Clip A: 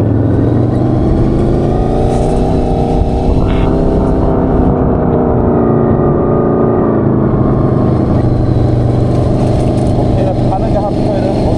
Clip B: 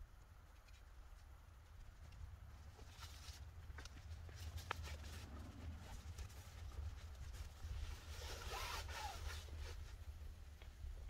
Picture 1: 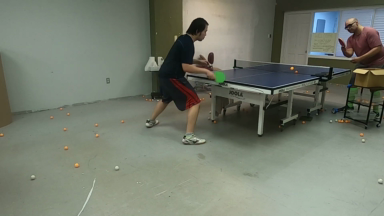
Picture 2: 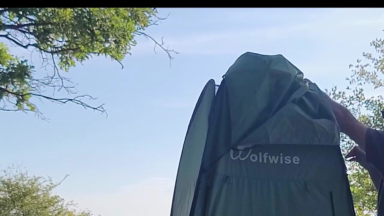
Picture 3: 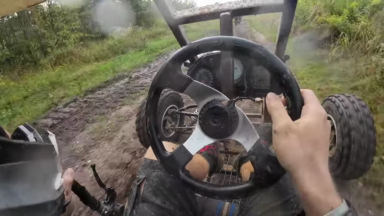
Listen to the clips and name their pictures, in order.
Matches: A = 3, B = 2